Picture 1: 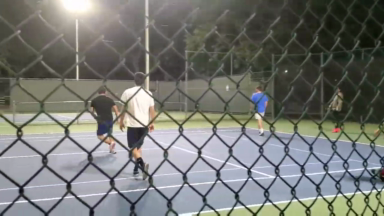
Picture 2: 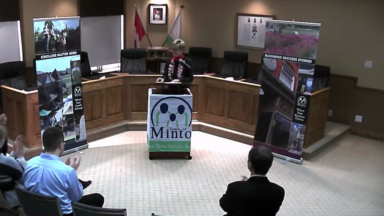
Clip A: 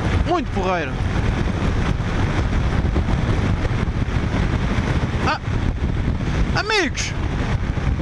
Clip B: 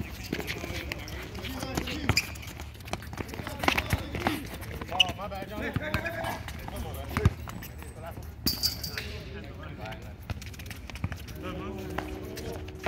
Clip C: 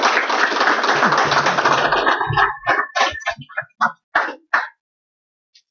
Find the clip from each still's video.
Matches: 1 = B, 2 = C